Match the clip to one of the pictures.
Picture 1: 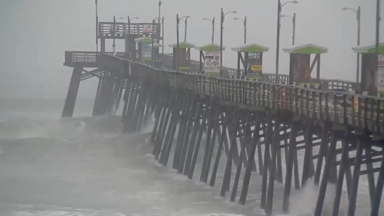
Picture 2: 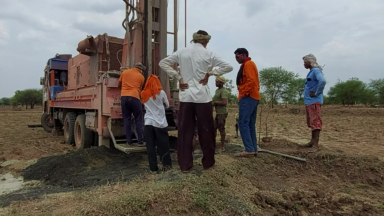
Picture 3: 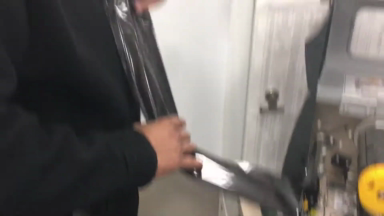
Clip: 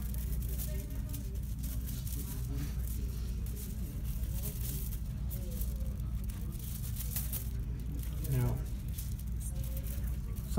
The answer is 3